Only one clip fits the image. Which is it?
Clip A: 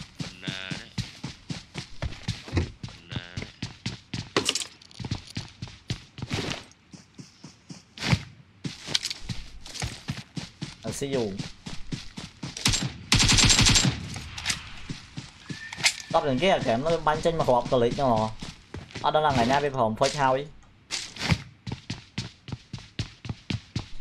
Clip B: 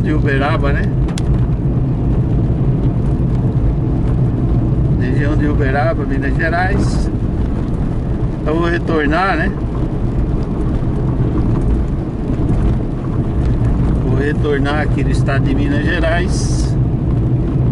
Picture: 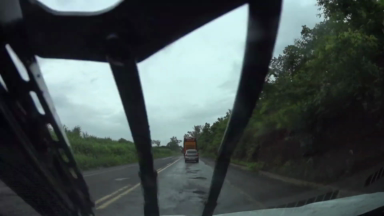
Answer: B